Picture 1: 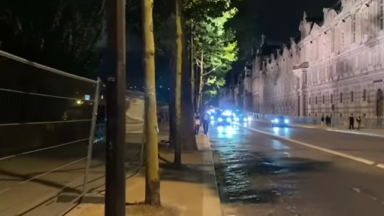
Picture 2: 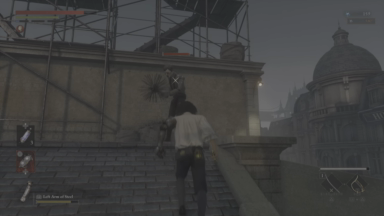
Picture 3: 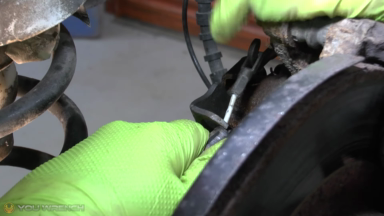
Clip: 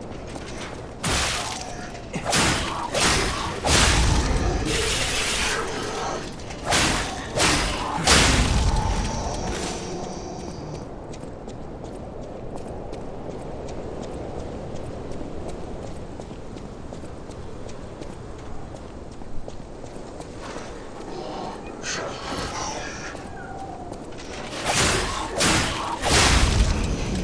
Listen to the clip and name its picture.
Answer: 2